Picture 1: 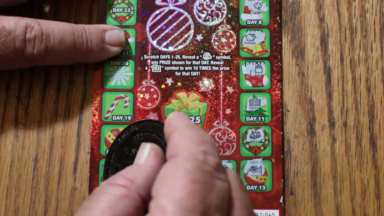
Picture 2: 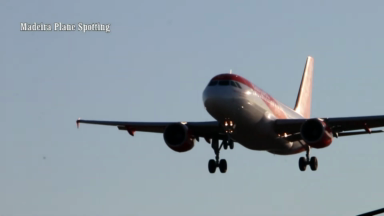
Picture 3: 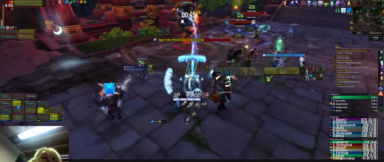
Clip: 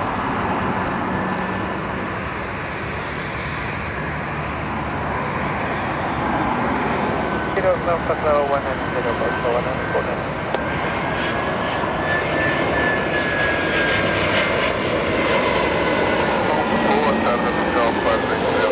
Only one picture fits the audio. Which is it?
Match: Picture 2